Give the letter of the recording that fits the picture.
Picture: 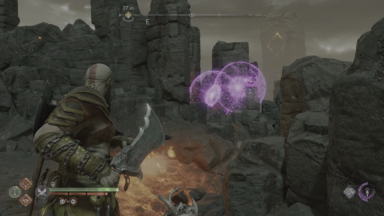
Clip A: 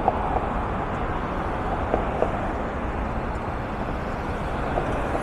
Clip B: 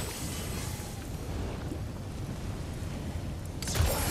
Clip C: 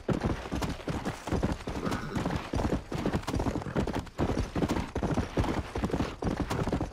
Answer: B